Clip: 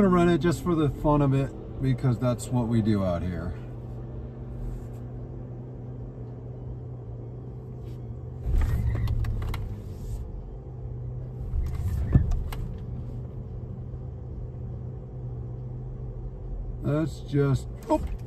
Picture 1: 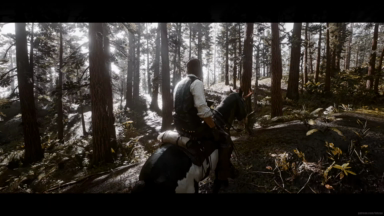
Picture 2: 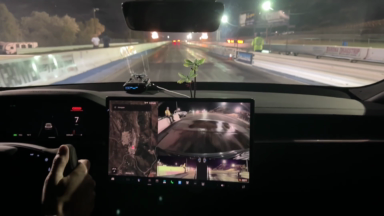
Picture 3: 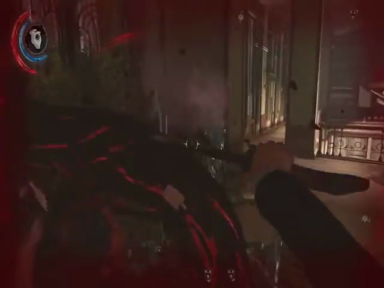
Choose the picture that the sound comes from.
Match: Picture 2